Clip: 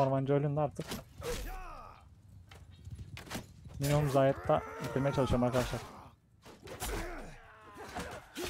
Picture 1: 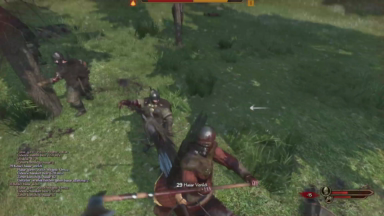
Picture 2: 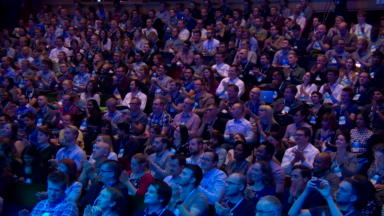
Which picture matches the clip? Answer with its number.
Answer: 1